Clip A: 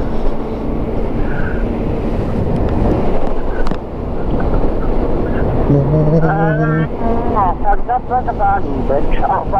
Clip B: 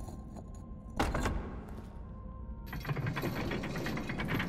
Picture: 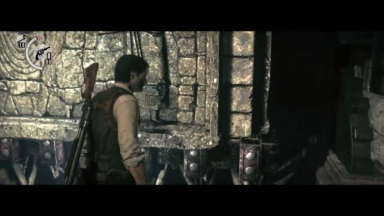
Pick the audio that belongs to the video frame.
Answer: B